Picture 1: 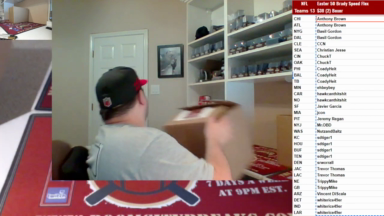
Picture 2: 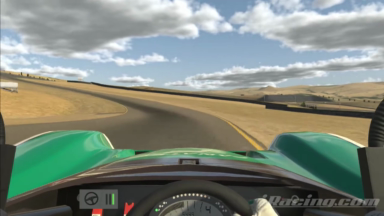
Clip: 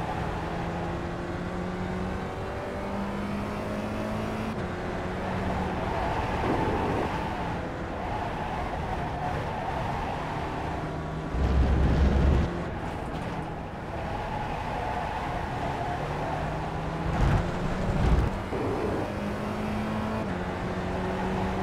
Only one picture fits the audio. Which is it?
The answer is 2